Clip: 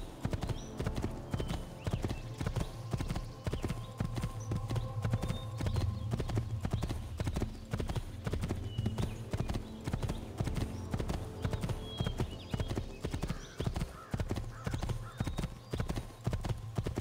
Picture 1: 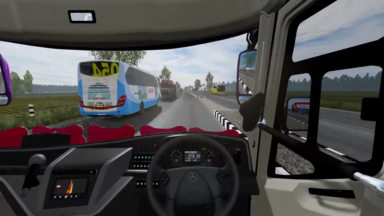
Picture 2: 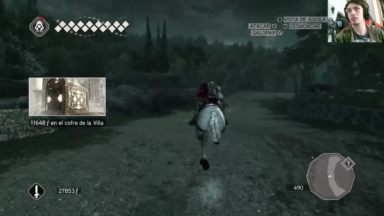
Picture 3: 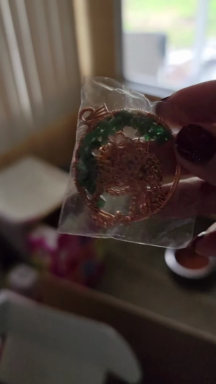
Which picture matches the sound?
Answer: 2